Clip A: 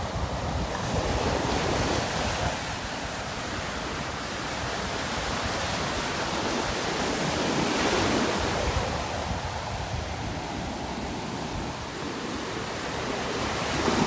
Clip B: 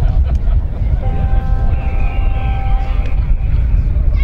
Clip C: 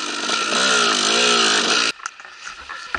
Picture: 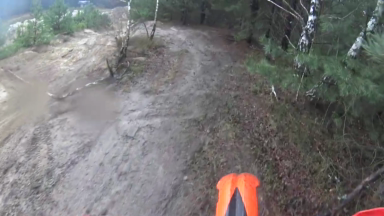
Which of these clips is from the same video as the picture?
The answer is C